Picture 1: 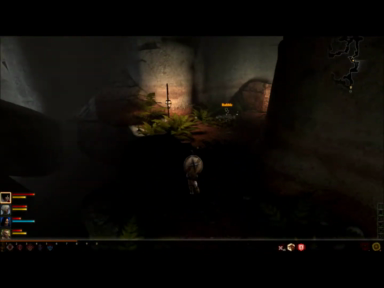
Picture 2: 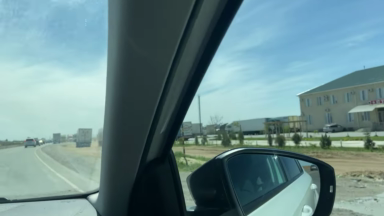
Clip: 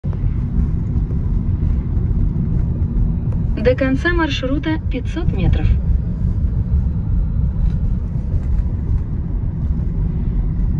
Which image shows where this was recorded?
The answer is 2